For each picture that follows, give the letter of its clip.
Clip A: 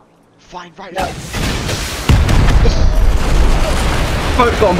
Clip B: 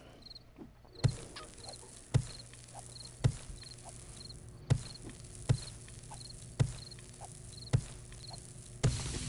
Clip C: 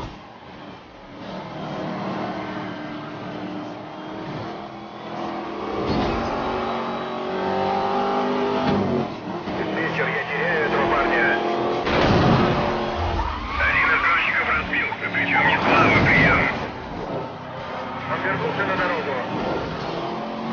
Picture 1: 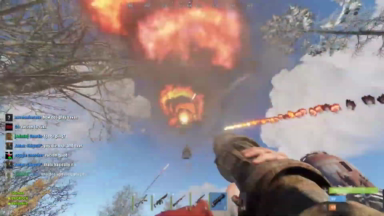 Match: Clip A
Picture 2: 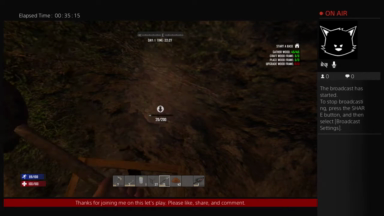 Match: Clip B